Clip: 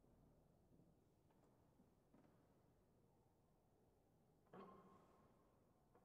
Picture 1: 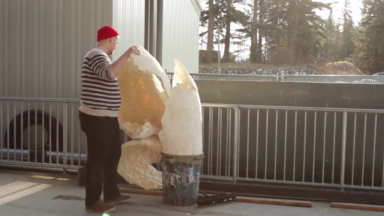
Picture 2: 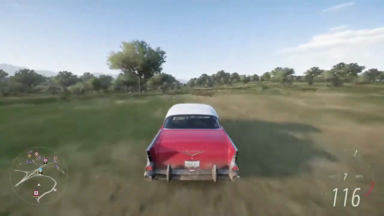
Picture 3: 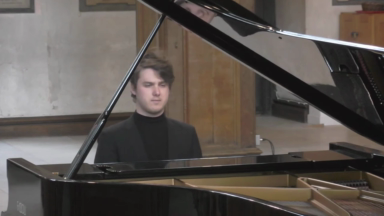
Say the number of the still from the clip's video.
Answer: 3